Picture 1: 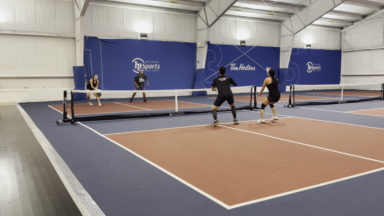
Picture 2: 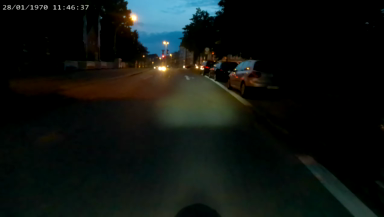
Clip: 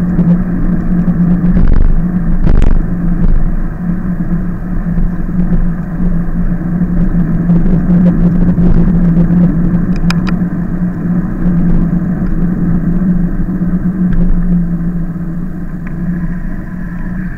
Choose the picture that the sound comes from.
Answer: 2